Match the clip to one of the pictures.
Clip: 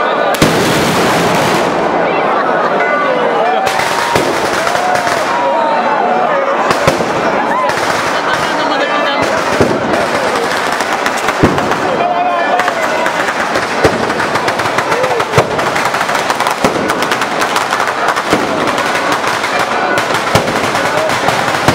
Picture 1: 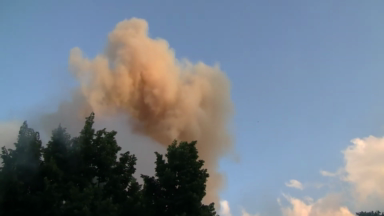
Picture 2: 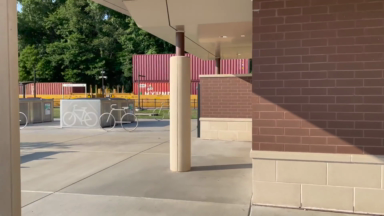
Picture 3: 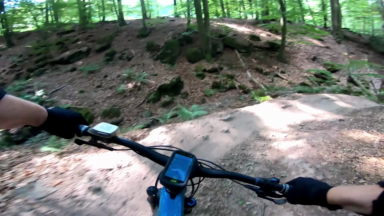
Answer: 1